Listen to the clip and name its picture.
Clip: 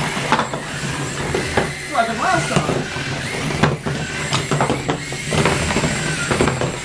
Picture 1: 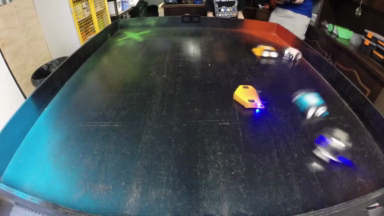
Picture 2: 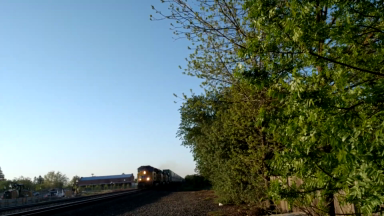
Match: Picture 1